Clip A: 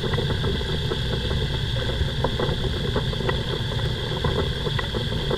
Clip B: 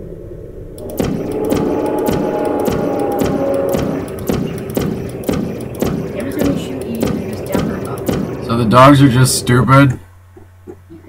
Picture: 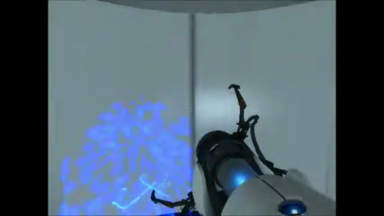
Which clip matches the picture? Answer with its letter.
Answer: B